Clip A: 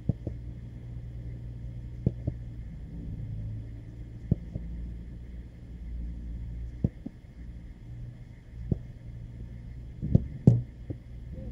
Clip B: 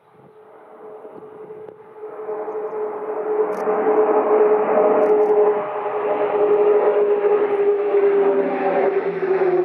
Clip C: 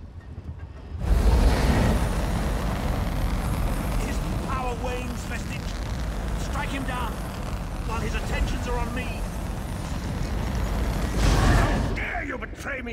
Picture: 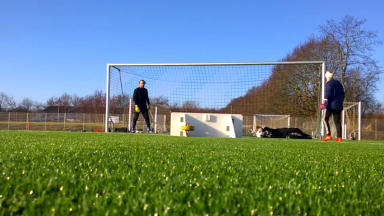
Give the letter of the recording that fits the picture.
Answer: A